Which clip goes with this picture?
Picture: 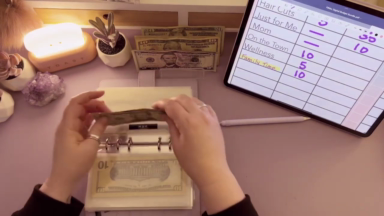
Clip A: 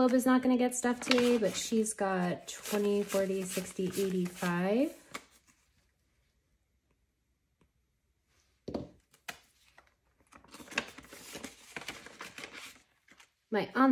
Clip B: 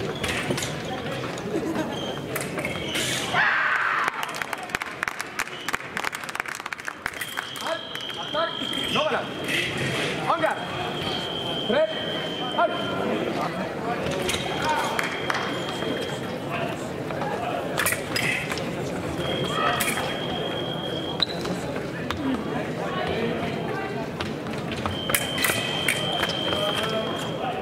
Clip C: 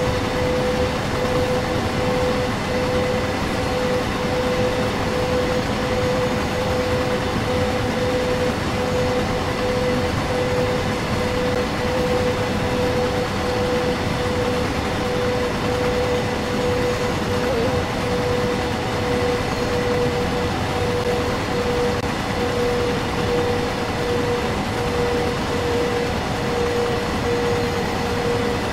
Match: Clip A